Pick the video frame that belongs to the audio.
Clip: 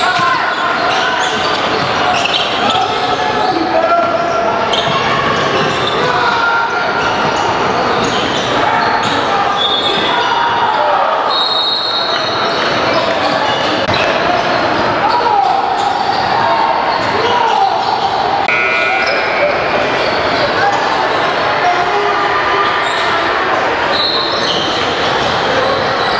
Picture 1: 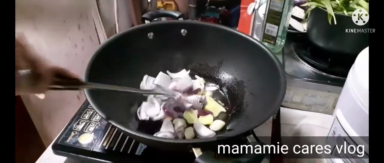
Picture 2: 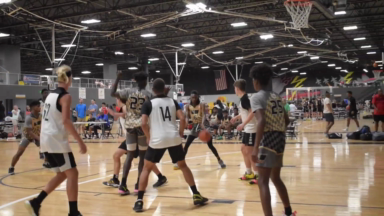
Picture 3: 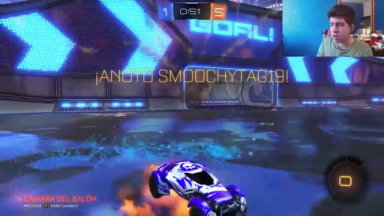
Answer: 2